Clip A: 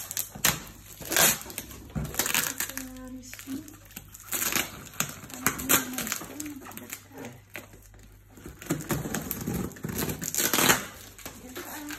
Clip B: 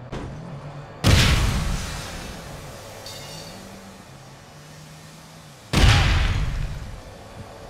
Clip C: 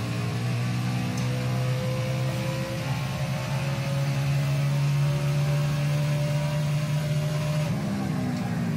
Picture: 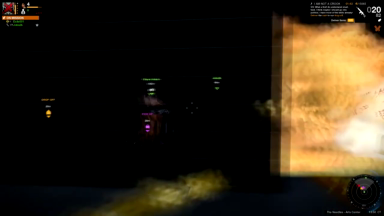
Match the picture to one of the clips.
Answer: B